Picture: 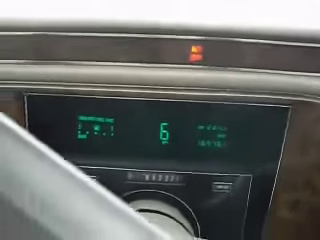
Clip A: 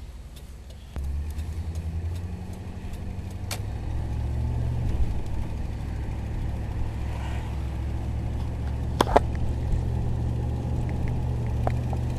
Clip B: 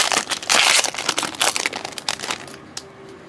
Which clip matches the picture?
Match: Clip A